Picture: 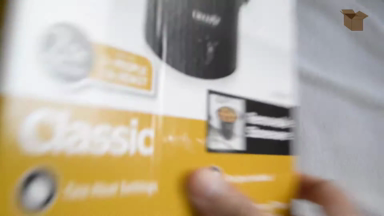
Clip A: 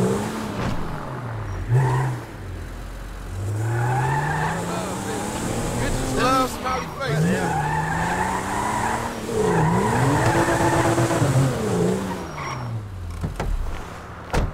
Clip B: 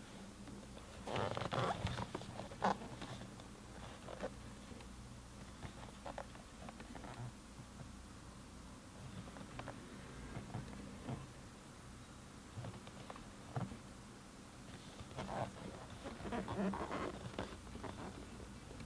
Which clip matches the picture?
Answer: B